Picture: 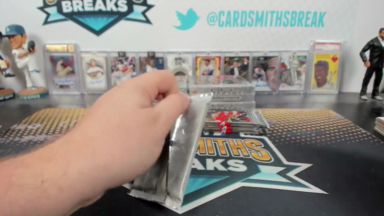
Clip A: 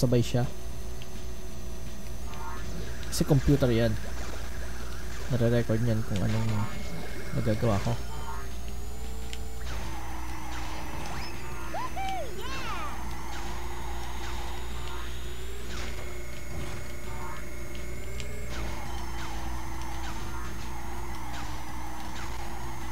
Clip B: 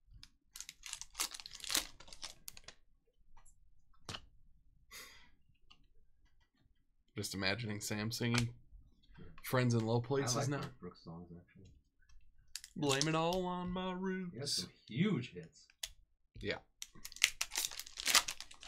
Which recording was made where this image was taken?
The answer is B